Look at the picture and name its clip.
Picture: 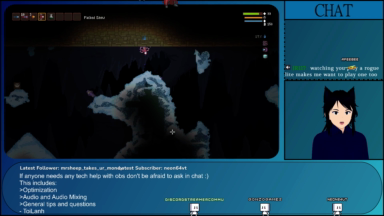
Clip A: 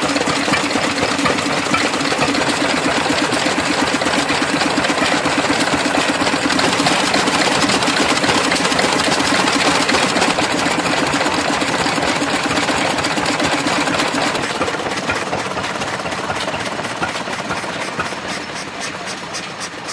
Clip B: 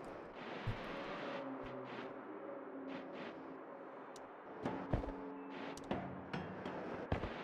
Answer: B